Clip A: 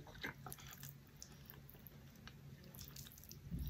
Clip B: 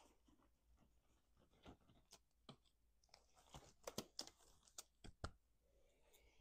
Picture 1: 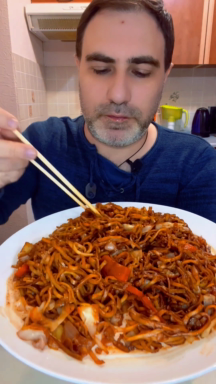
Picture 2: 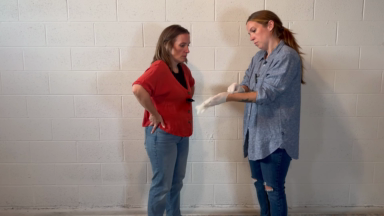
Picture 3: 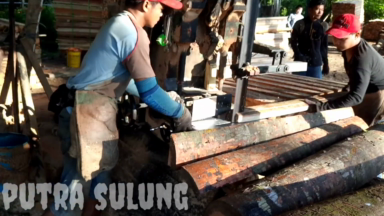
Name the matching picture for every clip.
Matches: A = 1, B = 2